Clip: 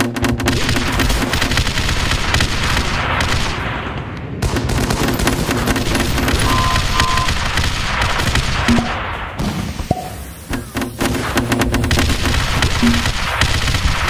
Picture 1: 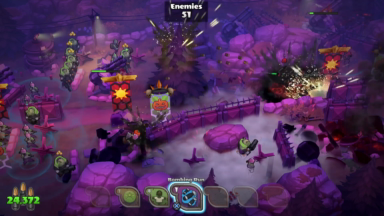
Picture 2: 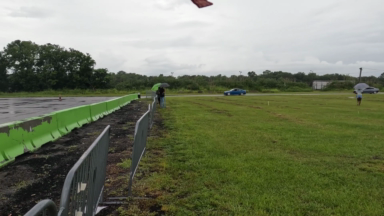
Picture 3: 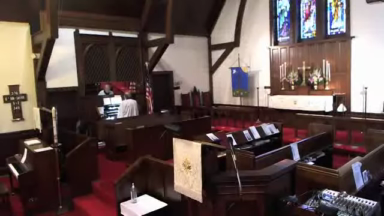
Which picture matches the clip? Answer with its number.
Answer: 1